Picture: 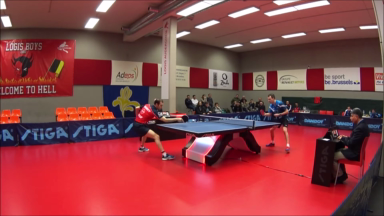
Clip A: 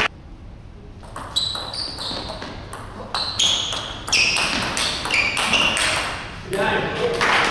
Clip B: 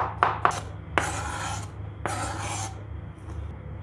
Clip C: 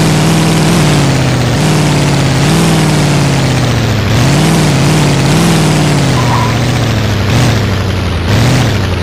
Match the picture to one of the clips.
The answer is A